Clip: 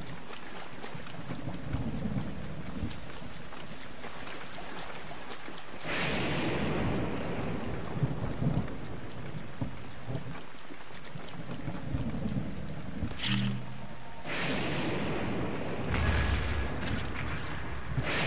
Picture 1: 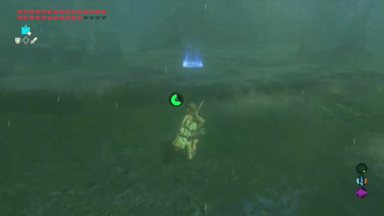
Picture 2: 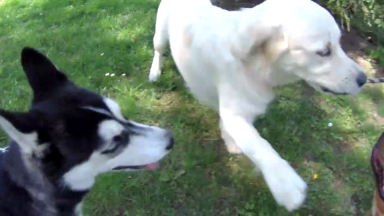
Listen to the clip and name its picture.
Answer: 1